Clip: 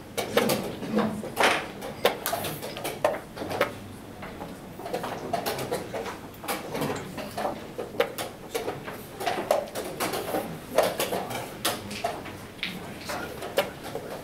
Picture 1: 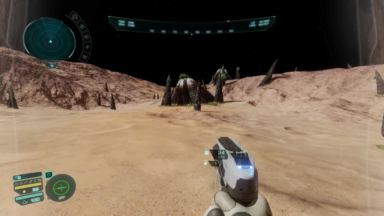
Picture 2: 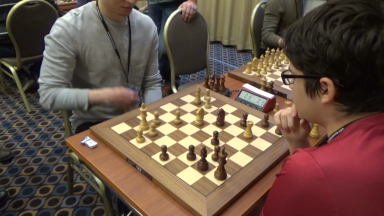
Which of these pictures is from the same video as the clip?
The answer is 2